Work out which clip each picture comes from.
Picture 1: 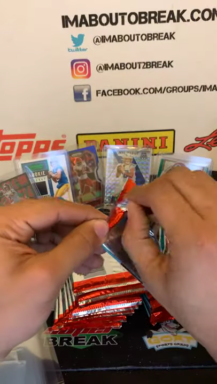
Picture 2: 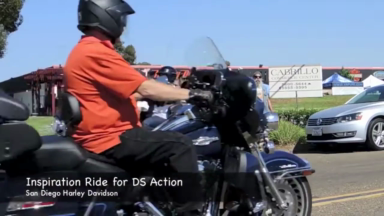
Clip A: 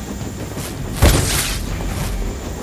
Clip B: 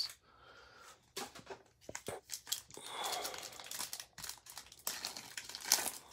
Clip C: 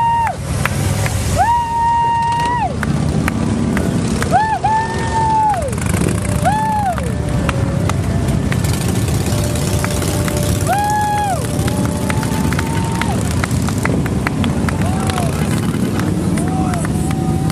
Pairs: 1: B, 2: C